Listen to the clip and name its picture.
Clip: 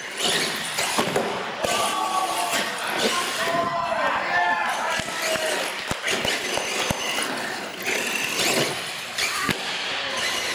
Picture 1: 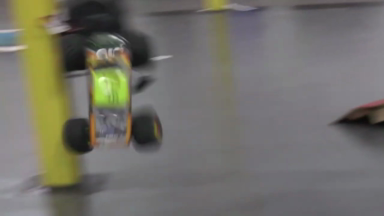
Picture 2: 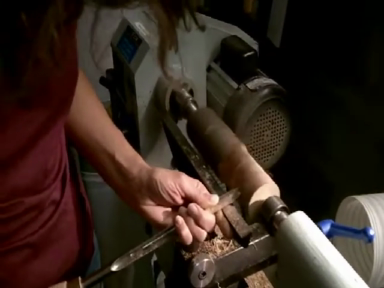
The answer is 1